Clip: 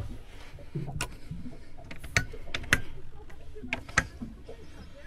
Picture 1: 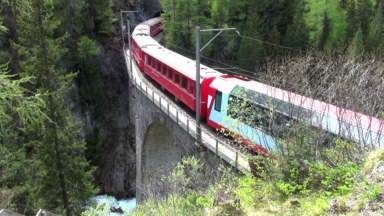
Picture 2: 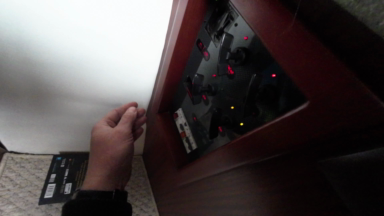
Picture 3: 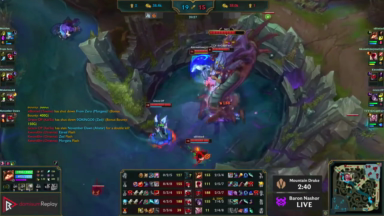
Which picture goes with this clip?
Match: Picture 2